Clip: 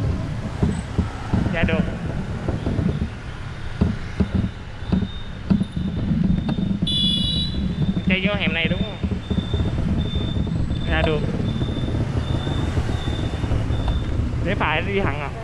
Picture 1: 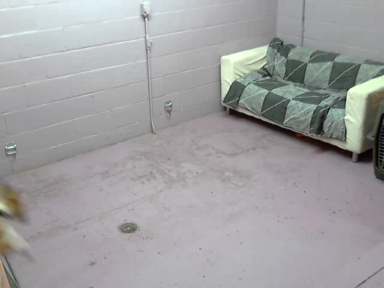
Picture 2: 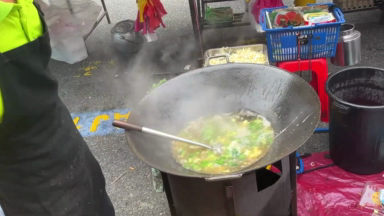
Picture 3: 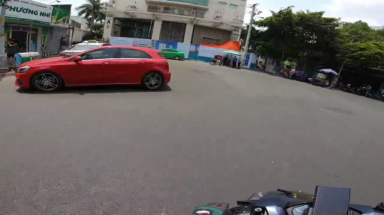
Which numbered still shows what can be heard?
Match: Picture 3